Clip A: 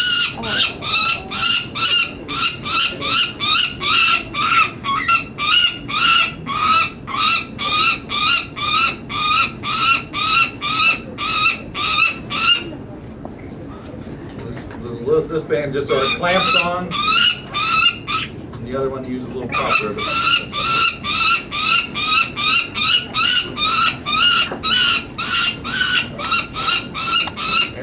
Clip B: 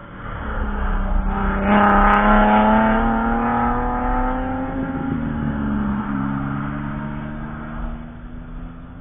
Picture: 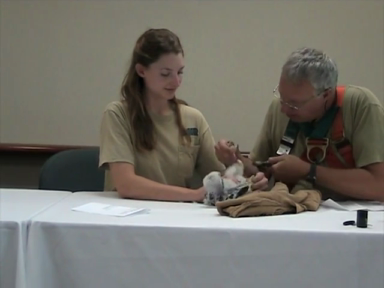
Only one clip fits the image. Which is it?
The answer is A